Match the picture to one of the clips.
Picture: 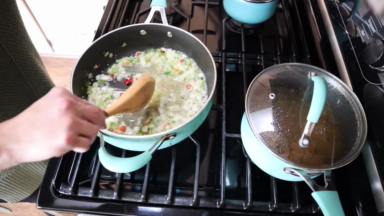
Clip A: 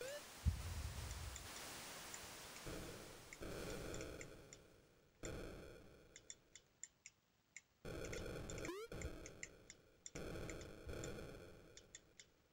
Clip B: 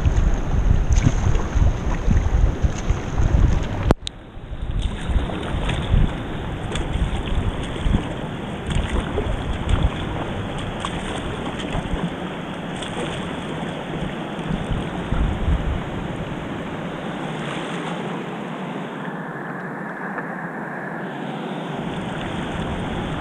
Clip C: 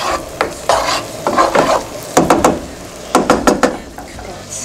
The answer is C